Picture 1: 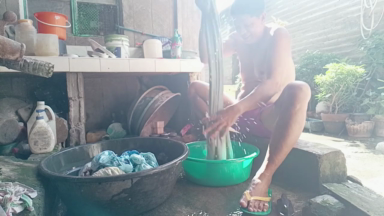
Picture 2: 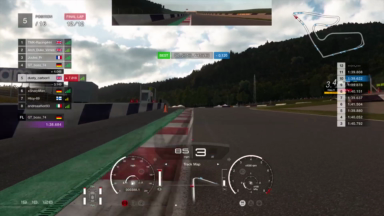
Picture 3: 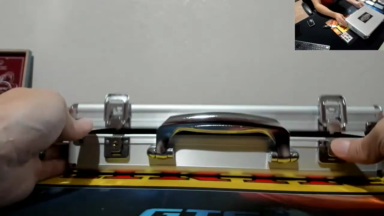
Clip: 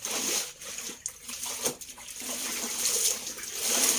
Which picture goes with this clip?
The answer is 1